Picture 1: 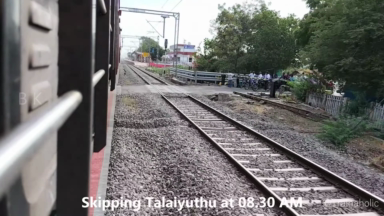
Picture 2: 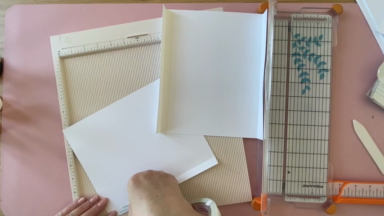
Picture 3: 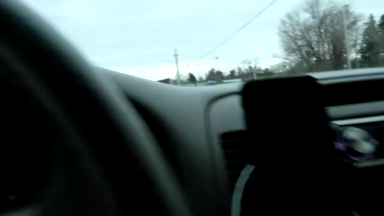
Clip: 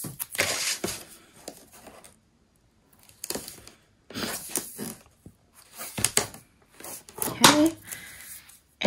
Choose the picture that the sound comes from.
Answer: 2